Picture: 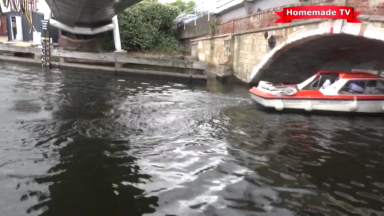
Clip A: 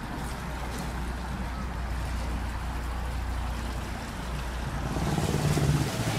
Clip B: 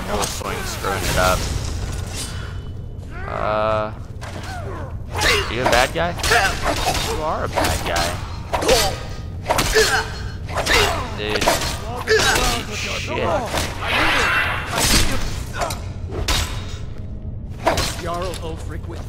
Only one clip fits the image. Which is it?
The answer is A